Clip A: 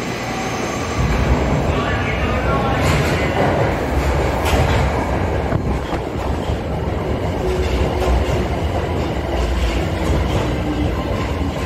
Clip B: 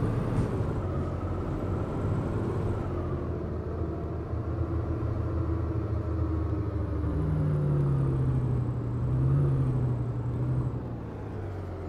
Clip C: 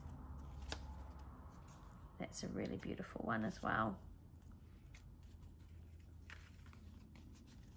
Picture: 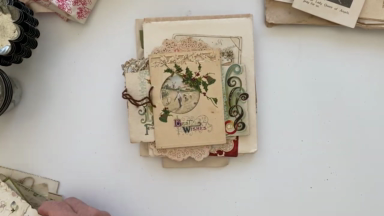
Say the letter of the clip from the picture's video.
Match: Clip C